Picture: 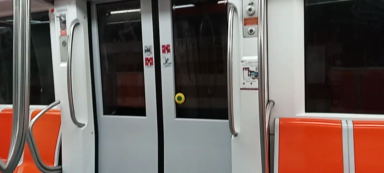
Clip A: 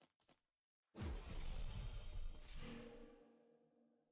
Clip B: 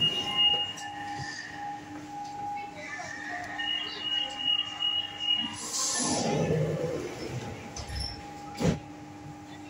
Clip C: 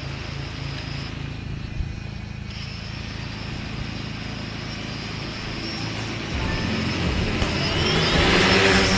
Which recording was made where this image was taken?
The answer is B